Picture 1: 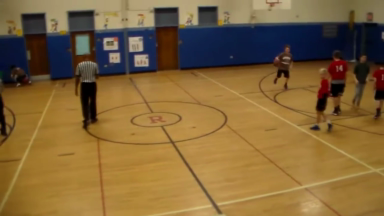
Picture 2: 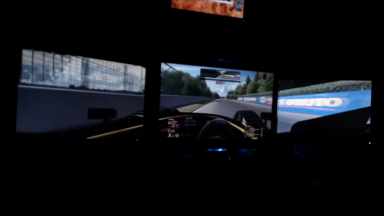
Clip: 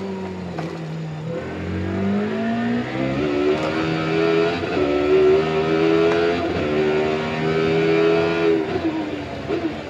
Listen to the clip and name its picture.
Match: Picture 2